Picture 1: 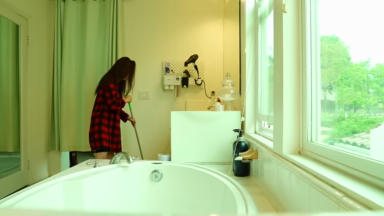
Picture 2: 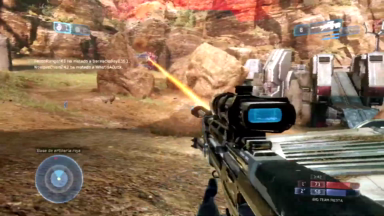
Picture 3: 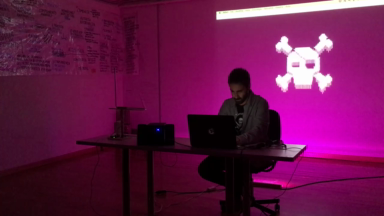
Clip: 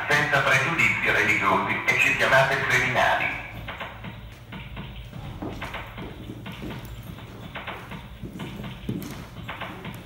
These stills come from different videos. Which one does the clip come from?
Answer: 3